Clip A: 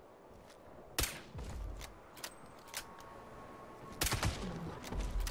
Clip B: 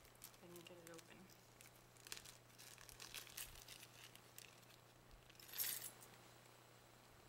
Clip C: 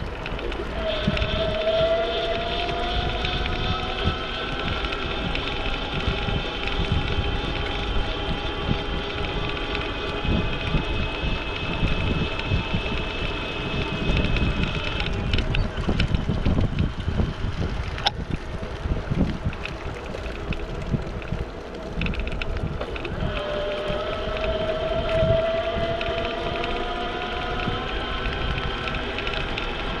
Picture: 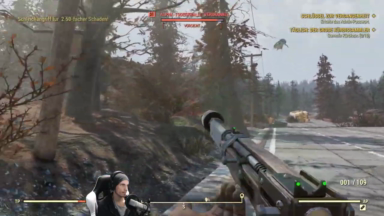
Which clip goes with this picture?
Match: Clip A